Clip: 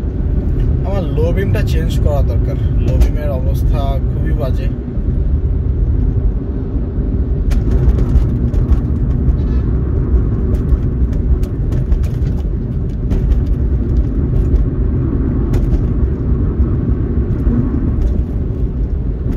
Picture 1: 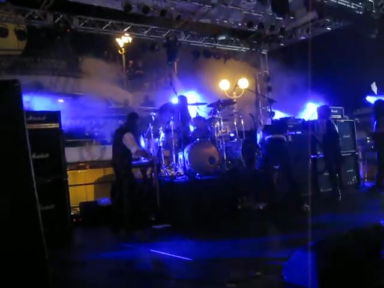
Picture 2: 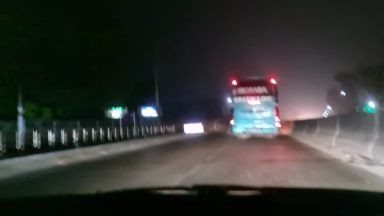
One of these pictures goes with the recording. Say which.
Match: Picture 2